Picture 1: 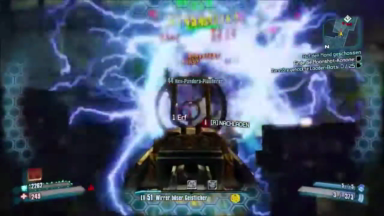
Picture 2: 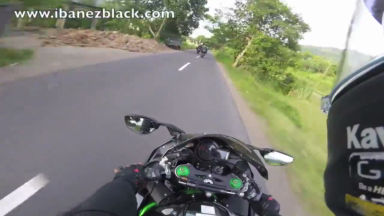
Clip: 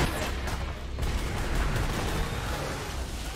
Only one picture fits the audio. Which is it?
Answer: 1